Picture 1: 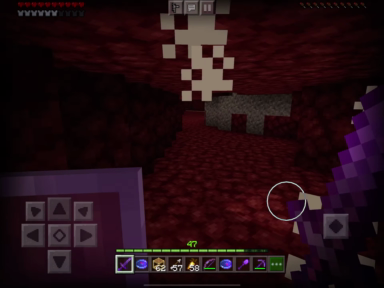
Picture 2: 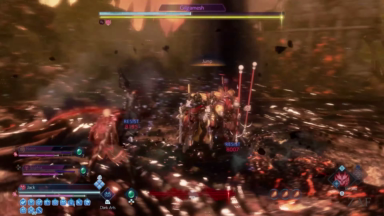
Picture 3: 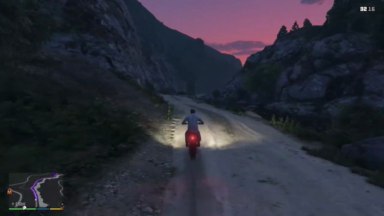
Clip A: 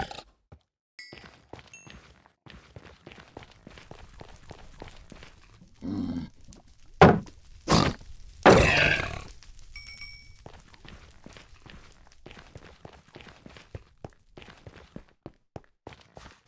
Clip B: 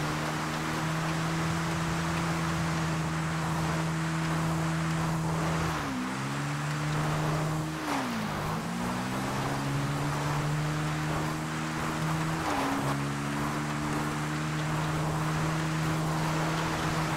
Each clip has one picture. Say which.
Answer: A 1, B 3